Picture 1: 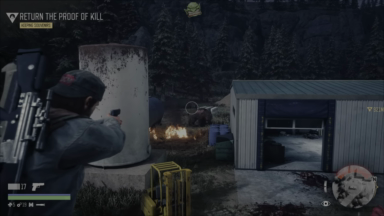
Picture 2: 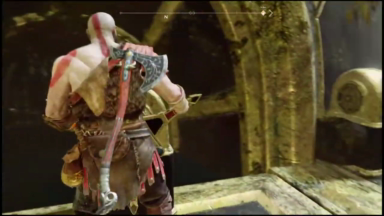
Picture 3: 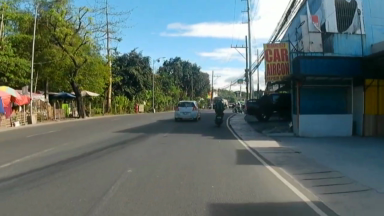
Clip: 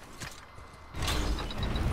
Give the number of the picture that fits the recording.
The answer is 2